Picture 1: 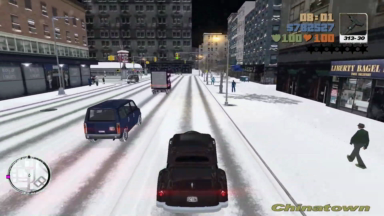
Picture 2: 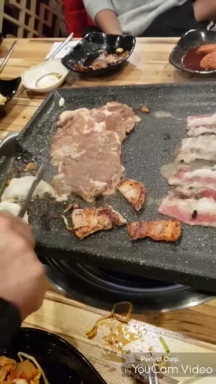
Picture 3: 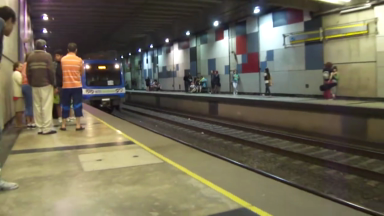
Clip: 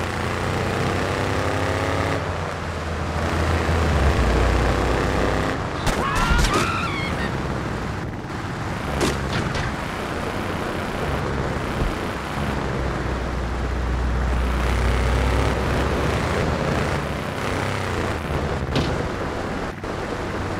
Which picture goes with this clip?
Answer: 1